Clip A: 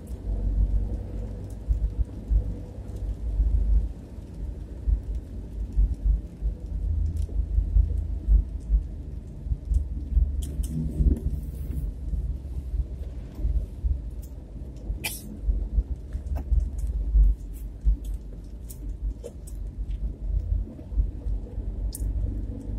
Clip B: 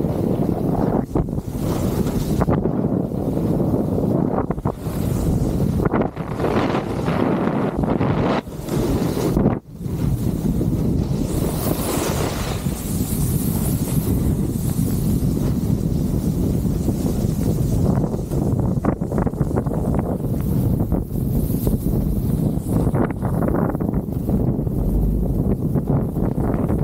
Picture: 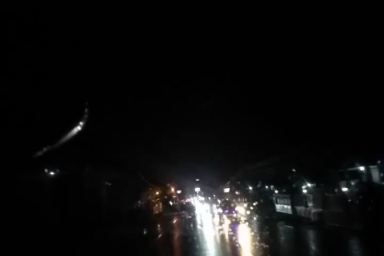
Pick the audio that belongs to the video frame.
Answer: A